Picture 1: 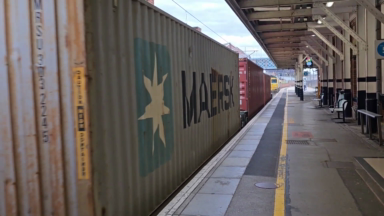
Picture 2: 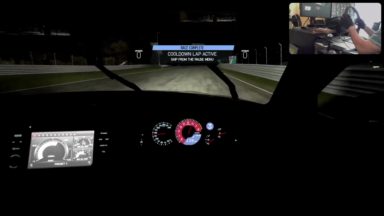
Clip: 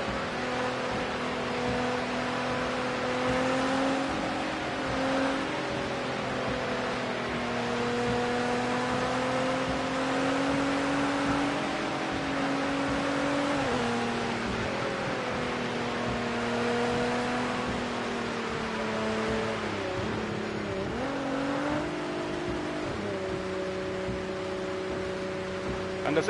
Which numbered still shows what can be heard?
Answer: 2